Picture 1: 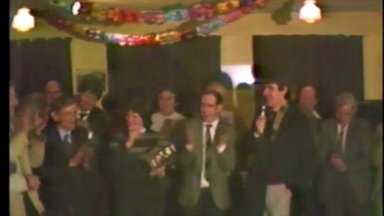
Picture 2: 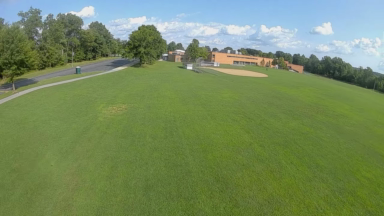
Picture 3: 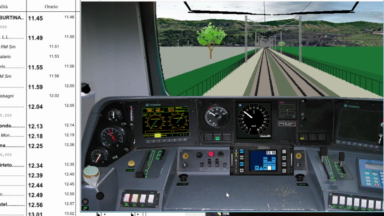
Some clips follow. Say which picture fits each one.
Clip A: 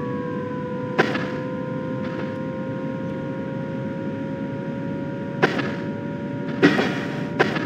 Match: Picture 3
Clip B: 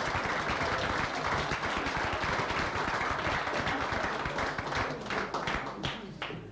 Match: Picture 1